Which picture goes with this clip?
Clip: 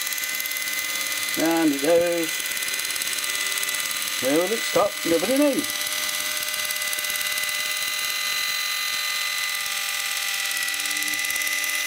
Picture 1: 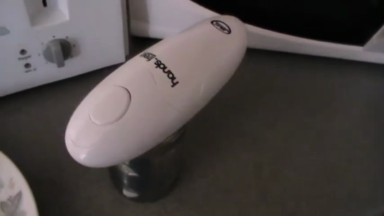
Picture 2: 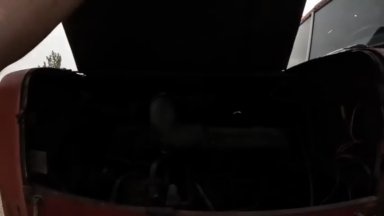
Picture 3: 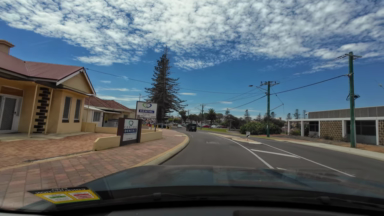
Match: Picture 1